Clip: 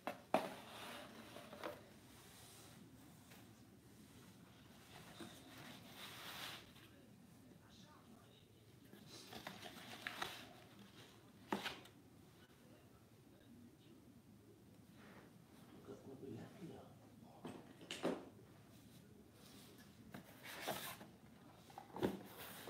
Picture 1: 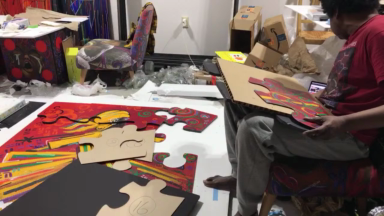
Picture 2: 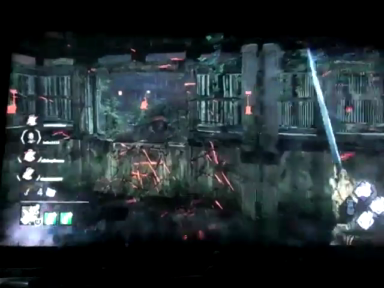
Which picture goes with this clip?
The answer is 1